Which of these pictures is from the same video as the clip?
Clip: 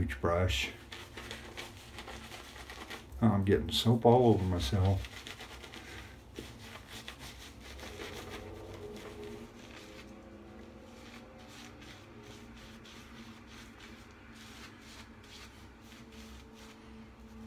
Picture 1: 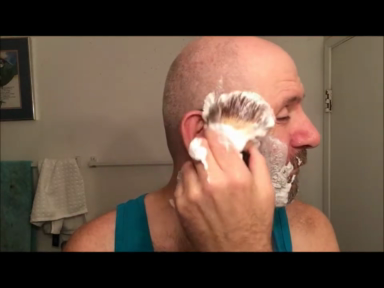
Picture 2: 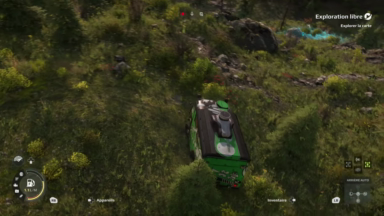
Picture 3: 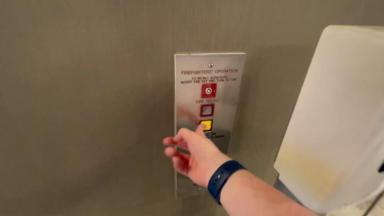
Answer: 1